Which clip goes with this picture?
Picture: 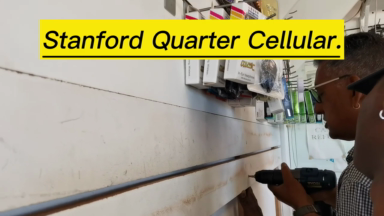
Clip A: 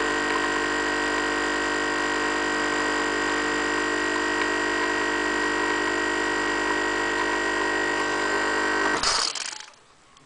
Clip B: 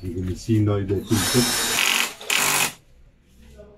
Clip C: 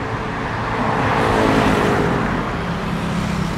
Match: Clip B